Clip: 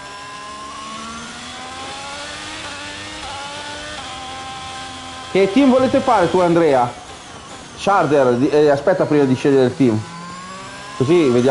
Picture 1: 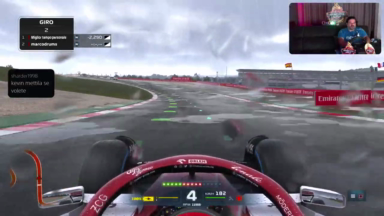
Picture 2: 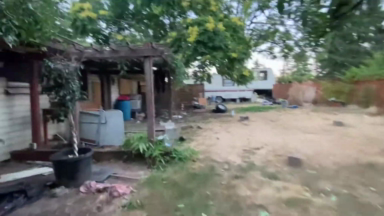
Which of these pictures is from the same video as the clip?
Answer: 1